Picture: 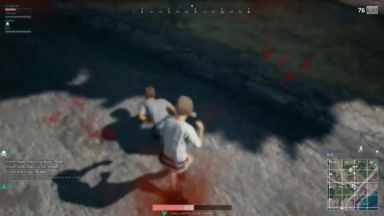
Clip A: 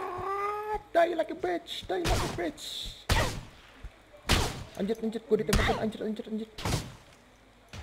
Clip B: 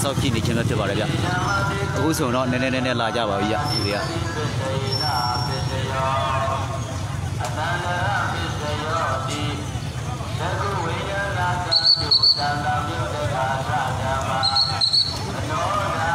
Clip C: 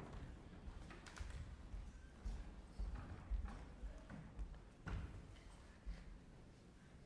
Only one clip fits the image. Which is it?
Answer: A